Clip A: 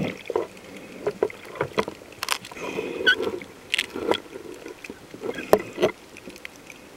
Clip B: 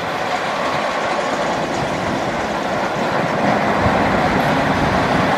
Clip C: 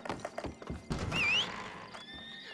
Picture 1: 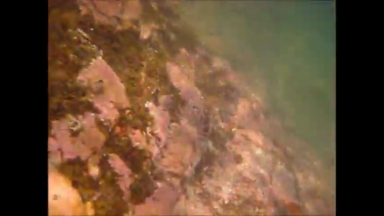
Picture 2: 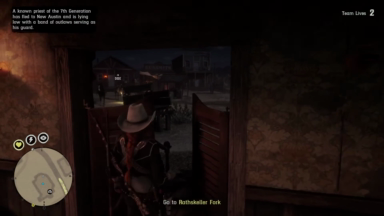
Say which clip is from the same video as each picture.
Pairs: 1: A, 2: C